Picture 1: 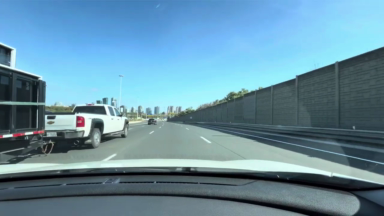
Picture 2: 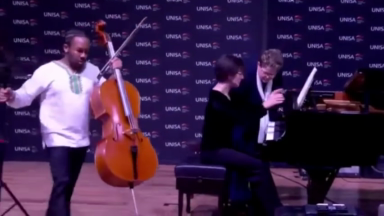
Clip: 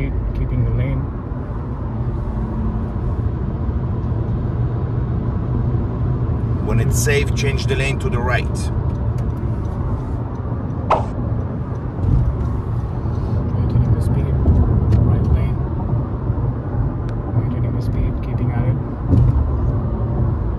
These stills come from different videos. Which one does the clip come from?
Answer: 1